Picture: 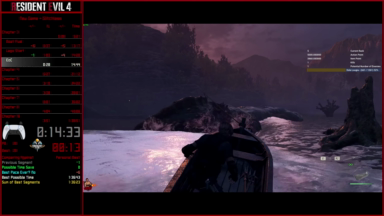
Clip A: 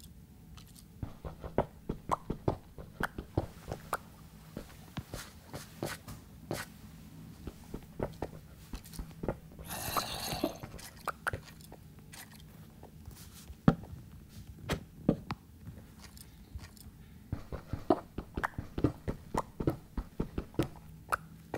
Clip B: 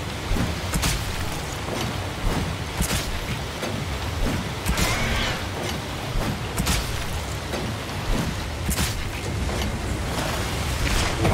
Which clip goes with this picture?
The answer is B